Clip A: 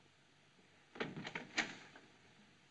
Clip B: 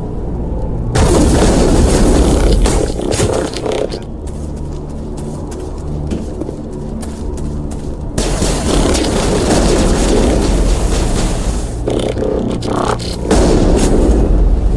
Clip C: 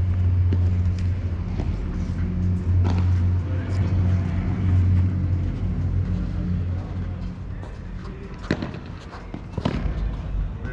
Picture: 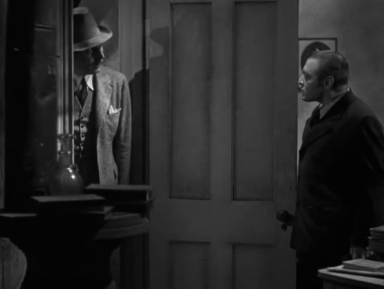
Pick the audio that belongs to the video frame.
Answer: A